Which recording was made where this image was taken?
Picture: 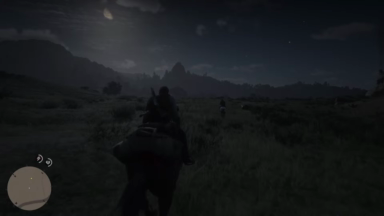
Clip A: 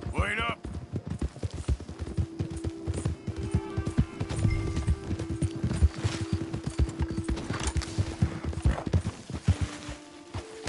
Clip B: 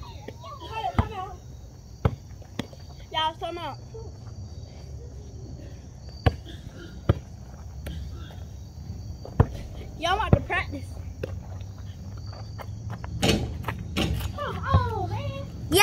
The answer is A